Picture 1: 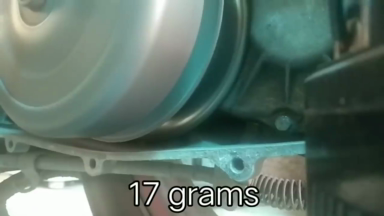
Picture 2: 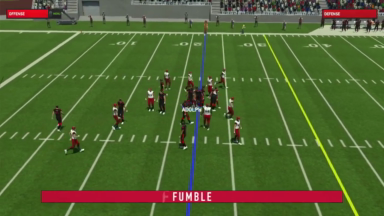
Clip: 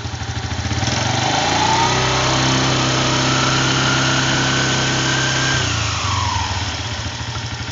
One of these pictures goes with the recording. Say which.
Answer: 1